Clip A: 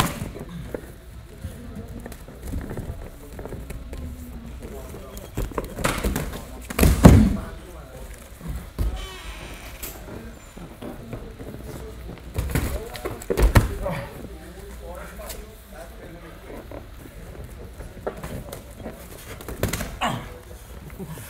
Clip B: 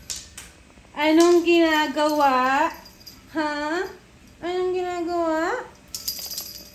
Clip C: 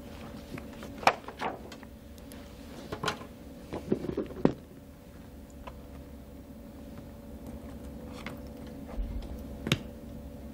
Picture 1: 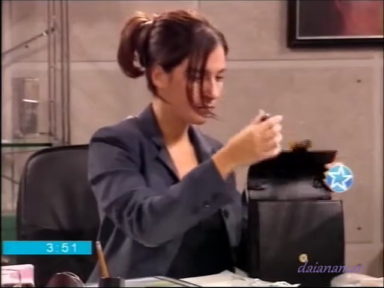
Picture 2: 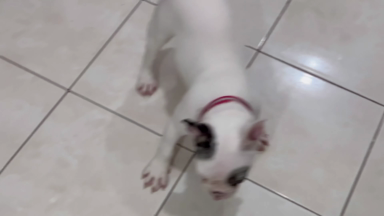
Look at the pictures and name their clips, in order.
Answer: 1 C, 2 B